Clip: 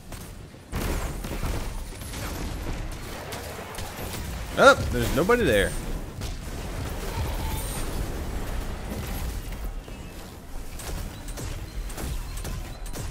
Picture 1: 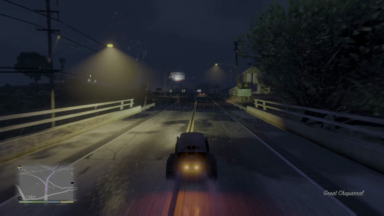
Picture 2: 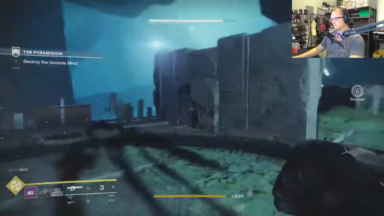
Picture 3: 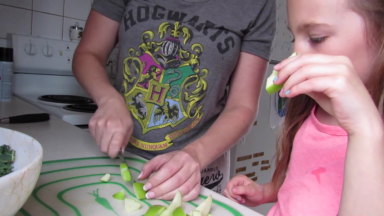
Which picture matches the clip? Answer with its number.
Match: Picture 2